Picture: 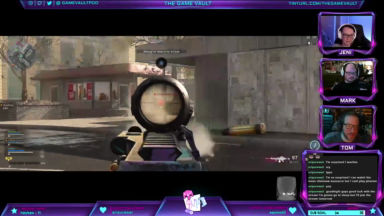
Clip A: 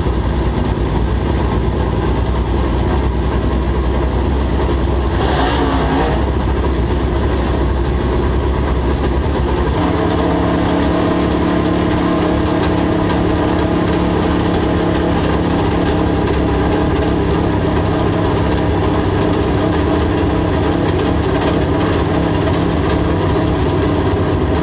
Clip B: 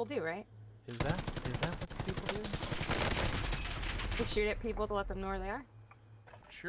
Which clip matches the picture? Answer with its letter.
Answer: B